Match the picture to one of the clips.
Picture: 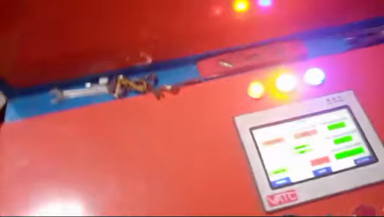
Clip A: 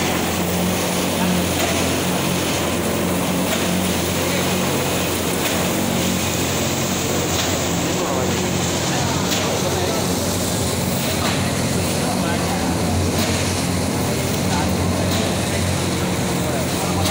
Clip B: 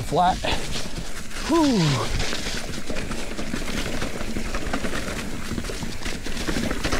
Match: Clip A